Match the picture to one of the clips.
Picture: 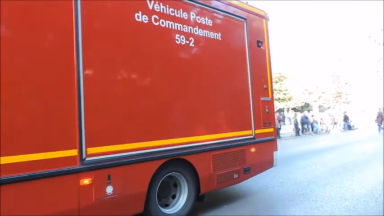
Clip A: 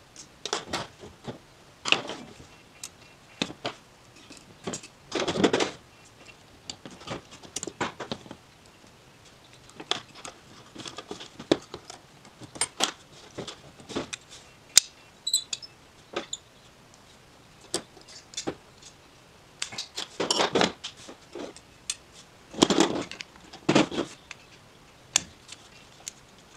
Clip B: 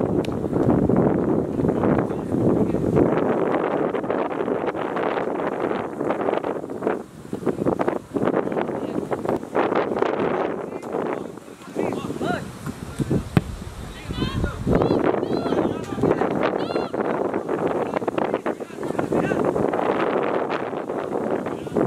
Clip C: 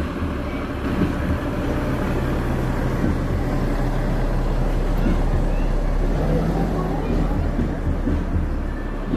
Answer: C